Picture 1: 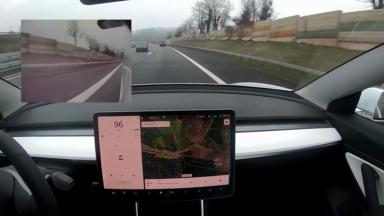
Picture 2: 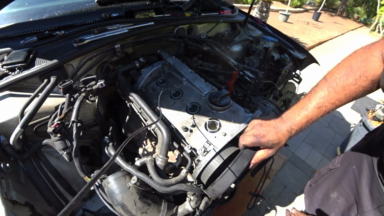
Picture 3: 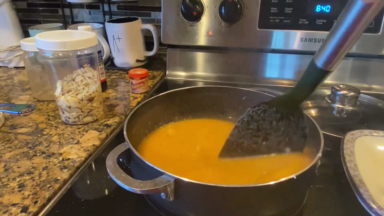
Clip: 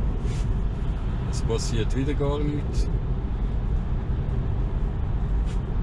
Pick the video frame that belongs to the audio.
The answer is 1